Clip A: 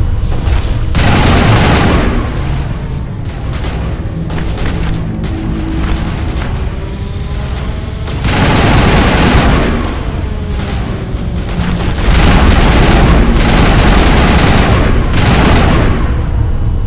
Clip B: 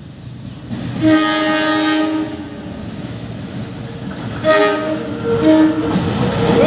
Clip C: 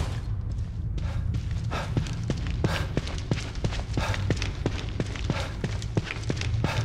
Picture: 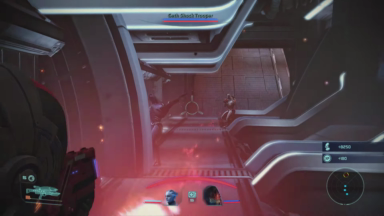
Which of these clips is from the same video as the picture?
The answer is A